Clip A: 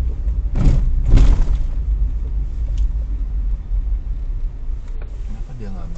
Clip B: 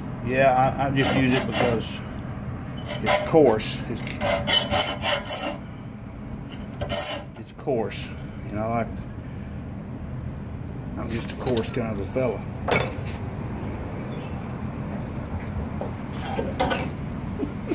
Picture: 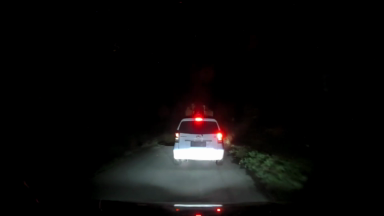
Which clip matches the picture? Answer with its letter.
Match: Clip A